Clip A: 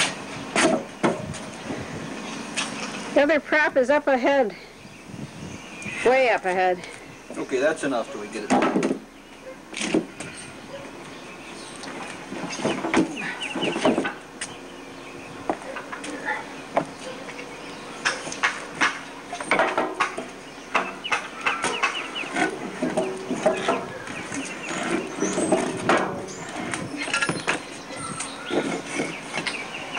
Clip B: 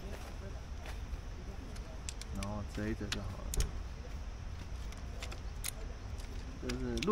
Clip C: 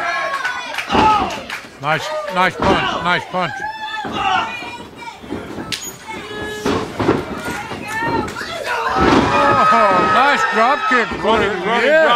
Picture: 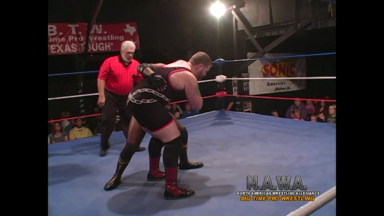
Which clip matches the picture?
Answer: C